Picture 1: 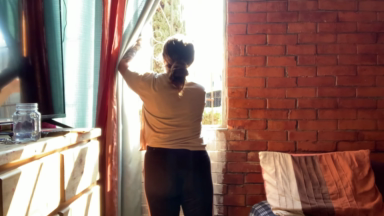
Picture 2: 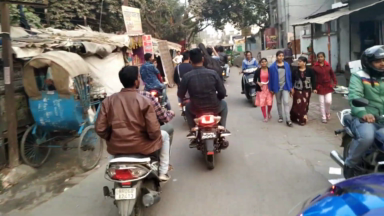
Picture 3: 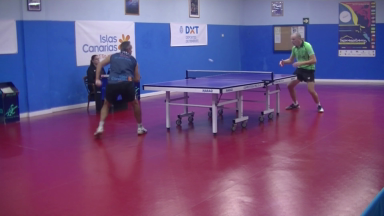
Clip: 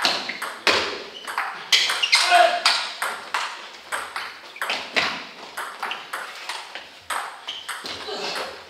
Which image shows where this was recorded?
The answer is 3